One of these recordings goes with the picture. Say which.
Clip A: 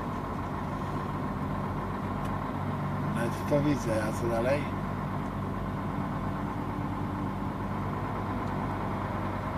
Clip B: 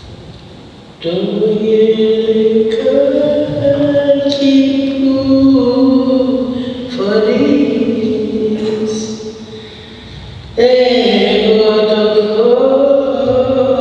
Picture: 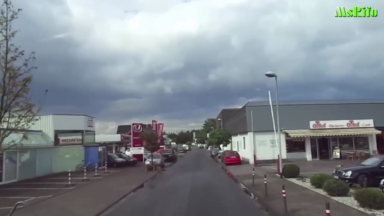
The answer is A